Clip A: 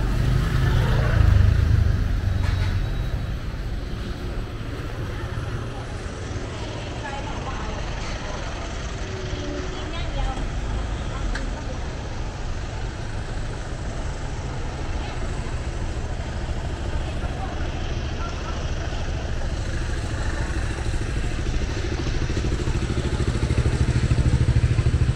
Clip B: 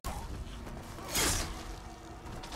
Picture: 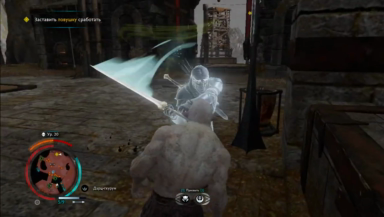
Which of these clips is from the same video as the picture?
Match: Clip B